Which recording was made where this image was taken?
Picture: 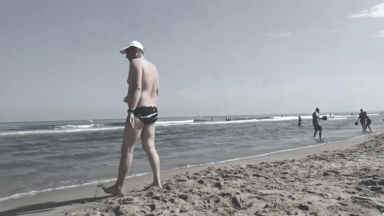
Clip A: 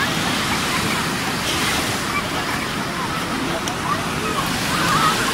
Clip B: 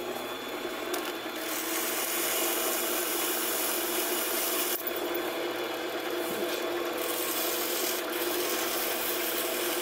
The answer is A